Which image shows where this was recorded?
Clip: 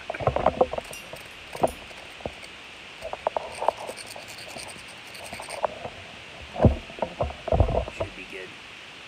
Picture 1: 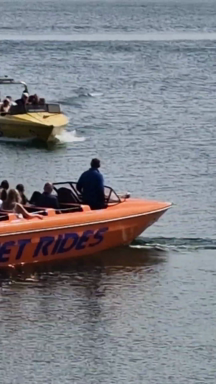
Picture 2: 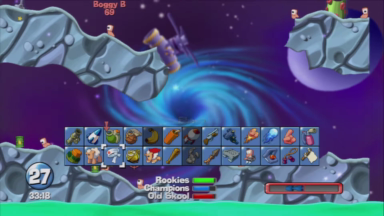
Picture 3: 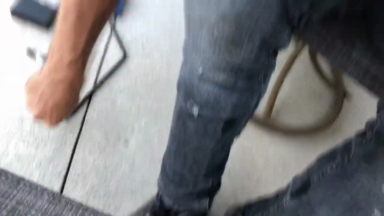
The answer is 3